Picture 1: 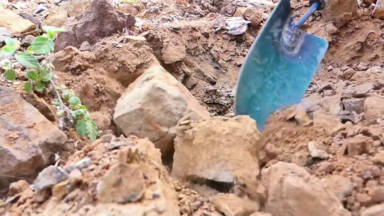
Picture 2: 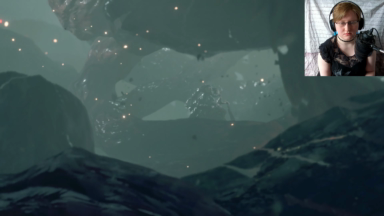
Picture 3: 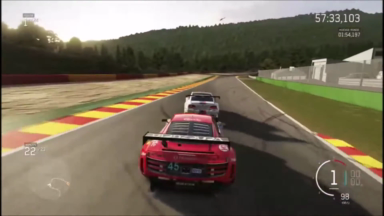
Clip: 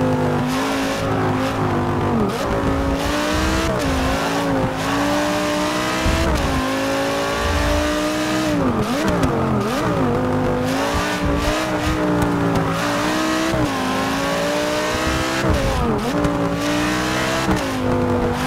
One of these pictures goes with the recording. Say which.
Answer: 3